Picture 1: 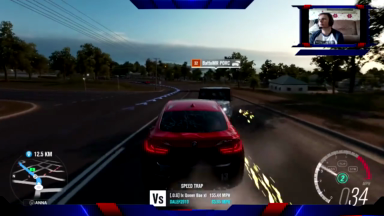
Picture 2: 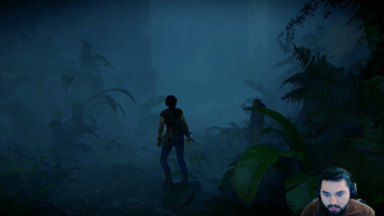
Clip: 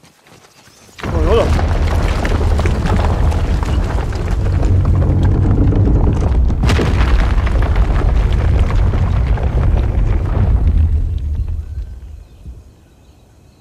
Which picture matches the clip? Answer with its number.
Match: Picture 2